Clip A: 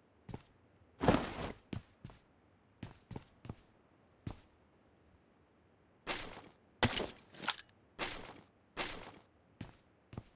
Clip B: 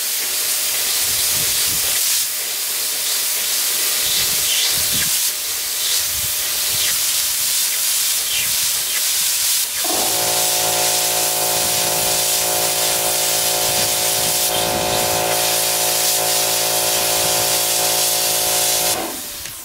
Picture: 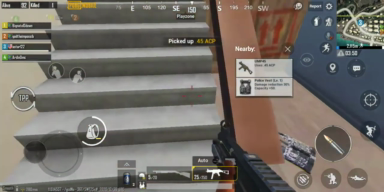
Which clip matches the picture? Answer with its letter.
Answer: A